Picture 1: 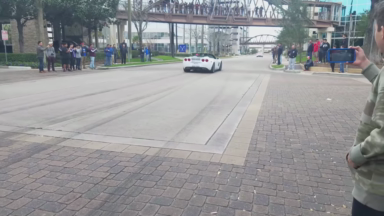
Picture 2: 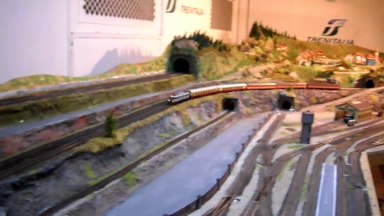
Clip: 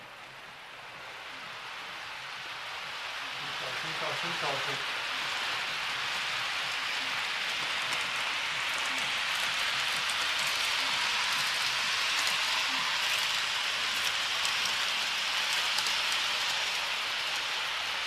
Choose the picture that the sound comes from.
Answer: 2